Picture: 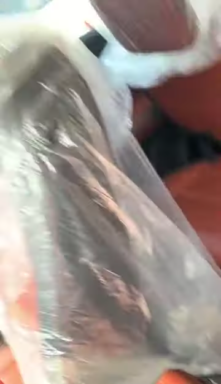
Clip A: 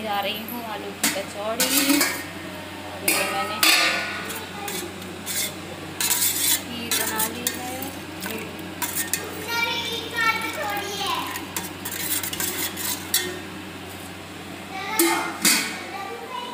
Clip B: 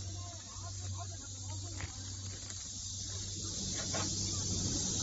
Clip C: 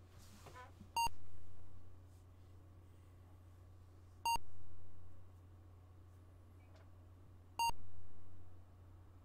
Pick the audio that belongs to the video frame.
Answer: B